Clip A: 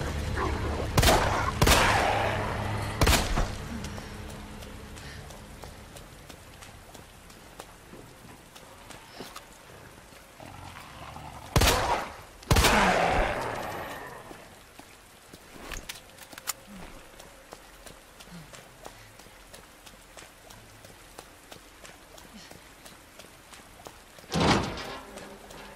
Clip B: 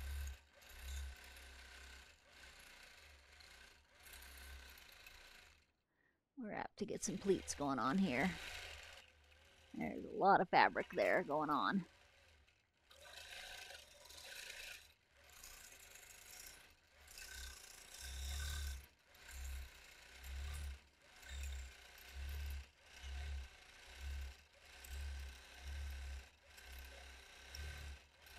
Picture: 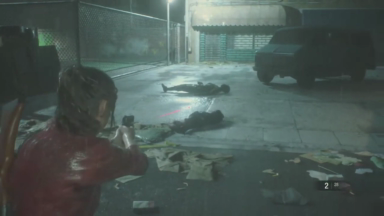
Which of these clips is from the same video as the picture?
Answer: A